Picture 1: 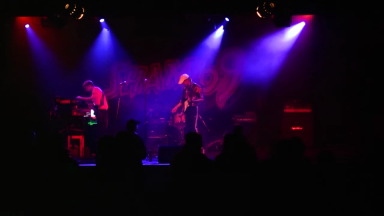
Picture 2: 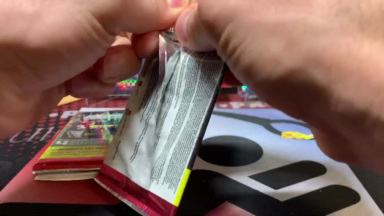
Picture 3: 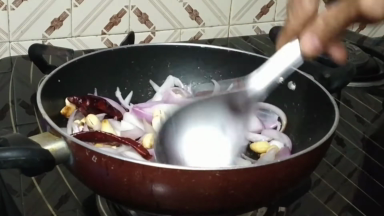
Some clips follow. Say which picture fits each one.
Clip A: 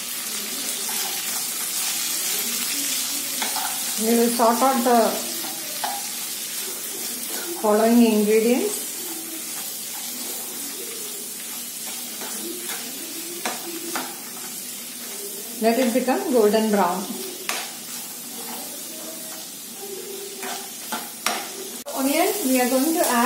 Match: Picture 3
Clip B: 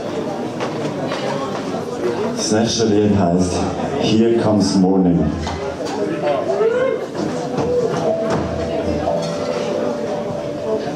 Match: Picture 1